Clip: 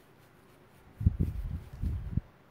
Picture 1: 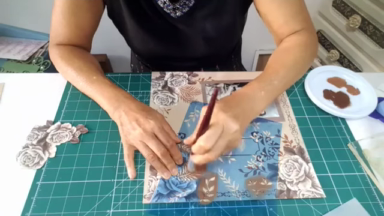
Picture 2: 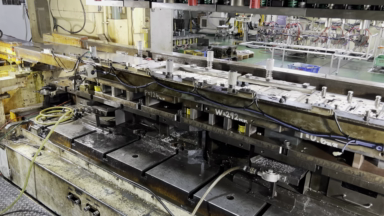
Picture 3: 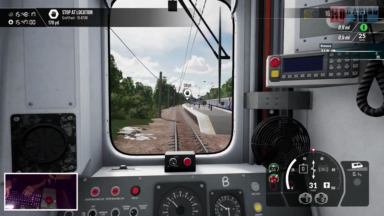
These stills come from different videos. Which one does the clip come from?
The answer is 1